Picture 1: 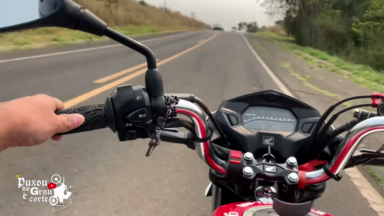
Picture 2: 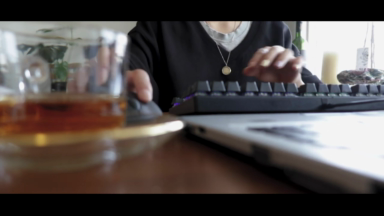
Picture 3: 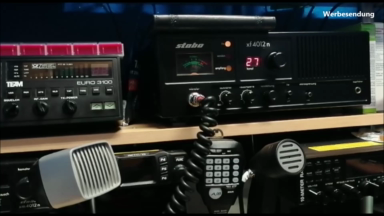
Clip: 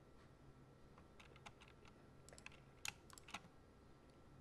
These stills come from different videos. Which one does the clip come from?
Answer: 2